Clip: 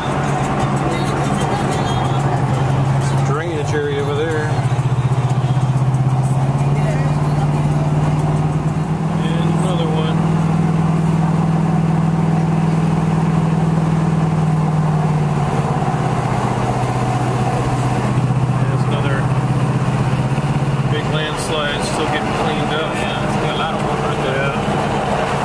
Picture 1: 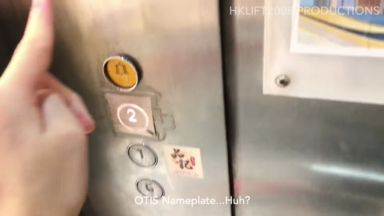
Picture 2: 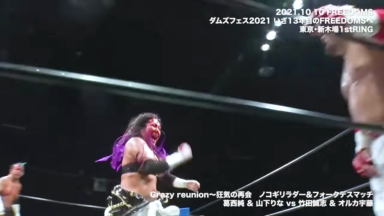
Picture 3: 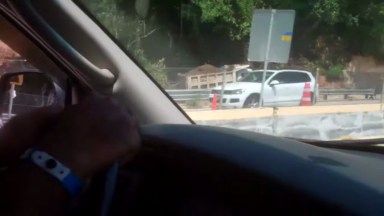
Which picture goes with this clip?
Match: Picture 3